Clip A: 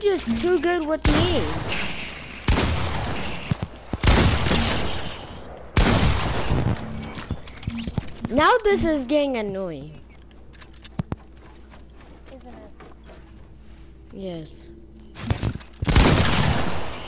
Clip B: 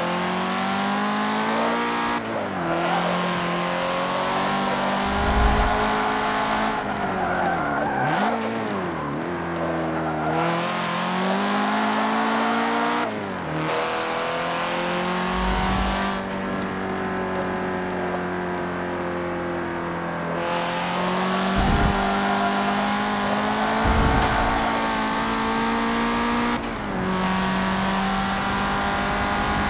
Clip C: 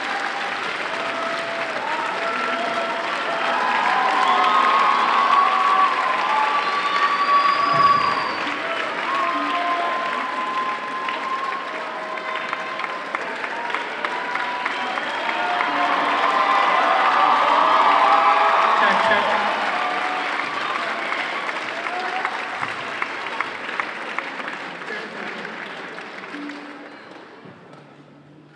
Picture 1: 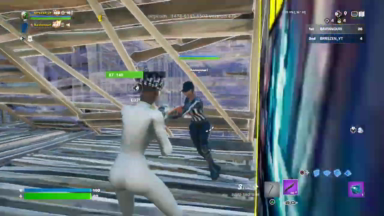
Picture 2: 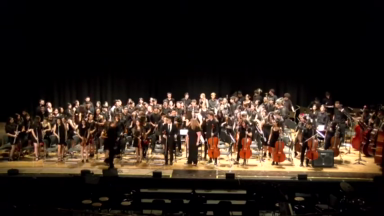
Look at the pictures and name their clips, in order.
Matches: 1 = A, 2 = C